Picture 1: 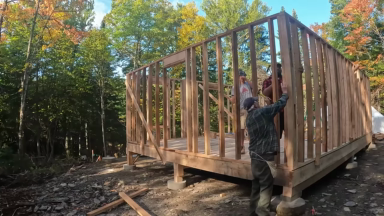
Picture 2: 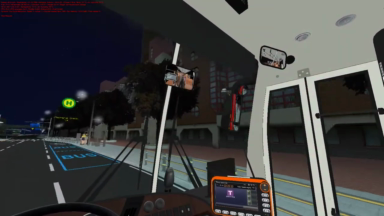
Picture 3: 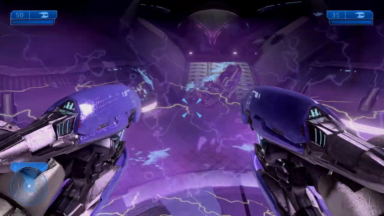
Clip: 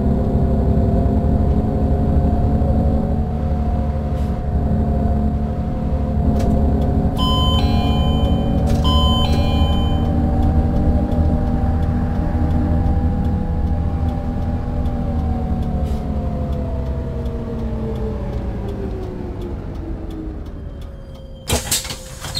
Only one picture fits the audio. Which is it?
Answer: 2